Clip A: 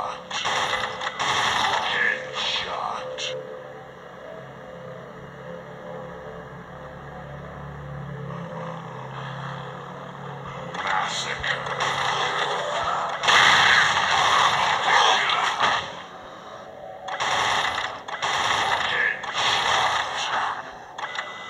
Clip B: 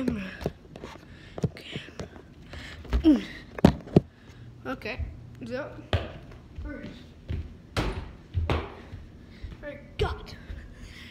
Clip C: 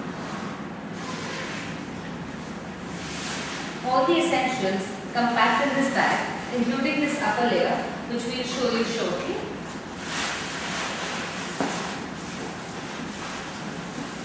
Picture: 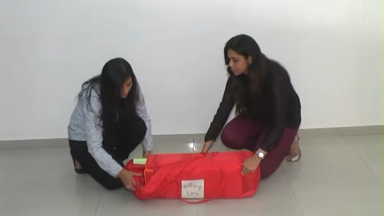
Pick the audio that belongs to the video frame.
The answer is C